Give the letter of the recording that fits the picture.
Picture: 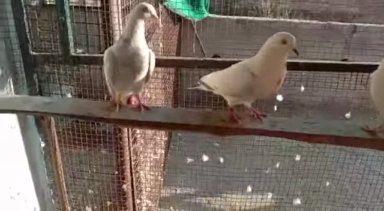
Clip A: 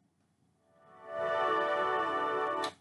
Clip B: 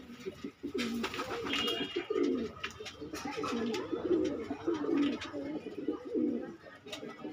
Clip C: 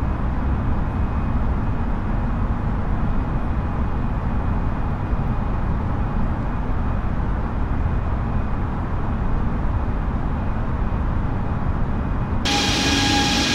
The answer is B